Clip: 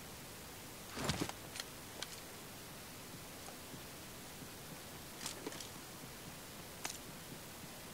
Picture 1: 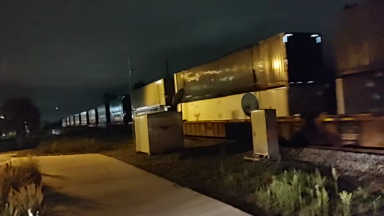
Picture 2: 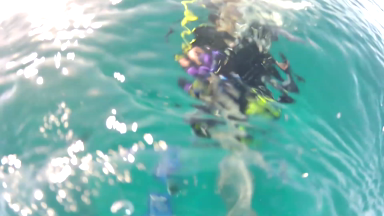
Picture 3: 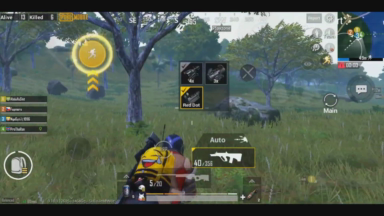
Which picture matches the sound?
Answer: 3